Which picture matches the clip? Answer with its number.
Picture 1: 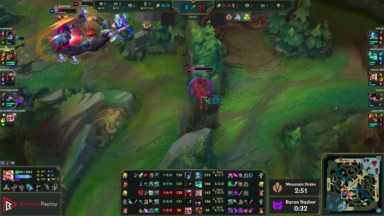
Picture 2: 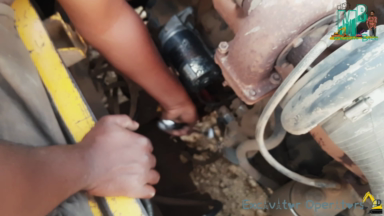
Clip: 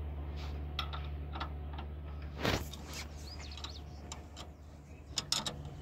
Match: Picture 2